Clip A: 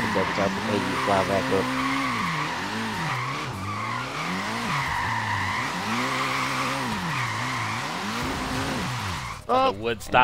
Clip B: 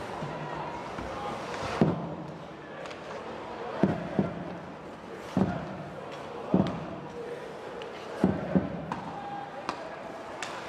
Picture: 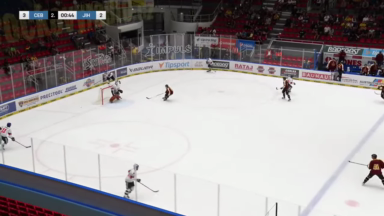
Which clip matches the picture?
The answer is B